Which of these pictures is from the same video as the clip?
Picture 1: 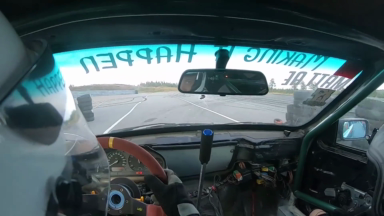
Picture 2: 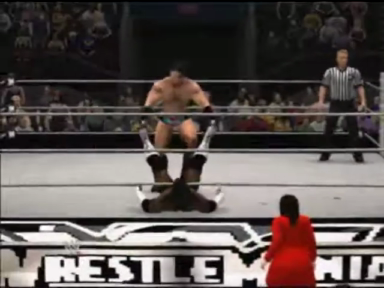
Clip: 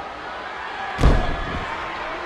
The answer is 2